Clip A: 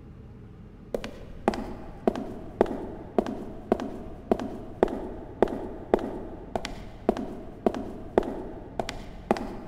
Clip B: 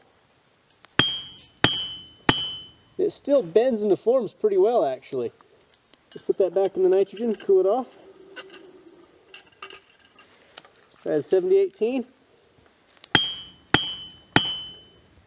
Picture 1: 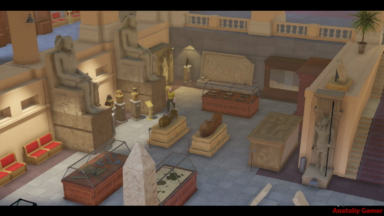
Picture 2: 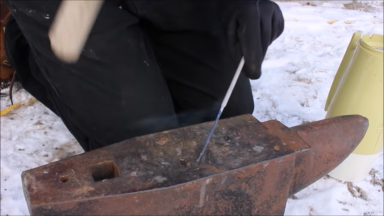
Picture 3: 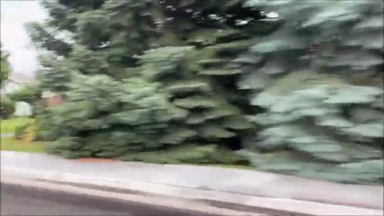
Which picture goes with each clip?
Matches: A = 1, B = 2